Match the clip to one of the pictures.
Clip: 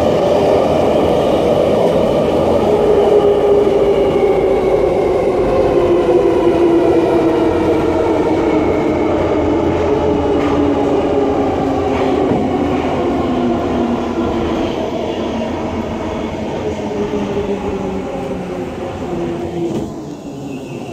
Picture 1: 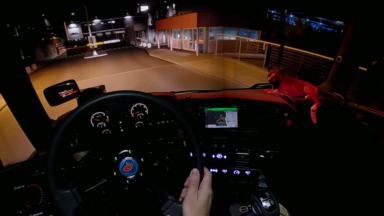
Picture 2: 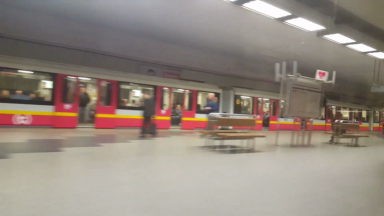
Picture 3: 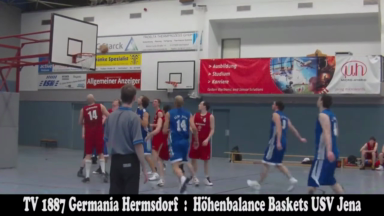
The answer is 2